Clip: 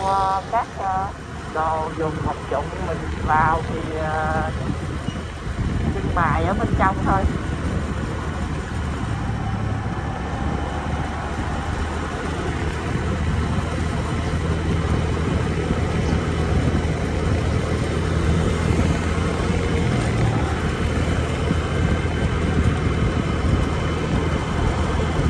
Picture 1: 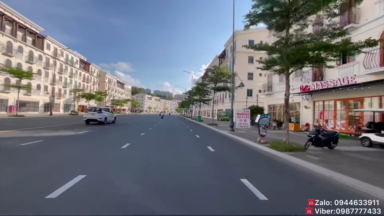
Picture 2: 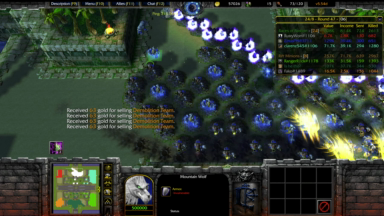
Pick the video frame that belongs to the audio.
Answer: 1